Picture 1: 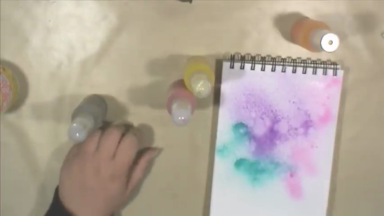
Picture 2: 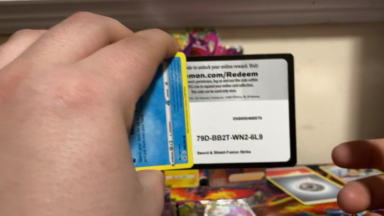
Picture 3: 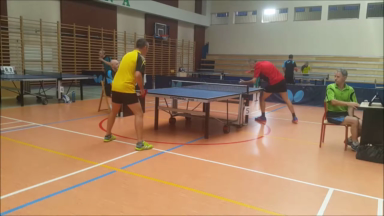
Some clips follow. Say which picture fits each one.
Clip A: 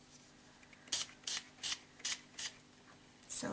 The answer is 1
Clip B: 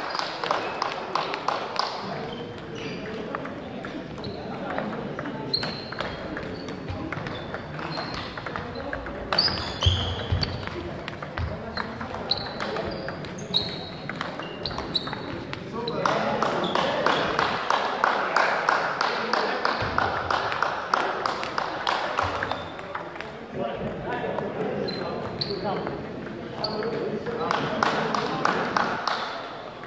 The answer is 3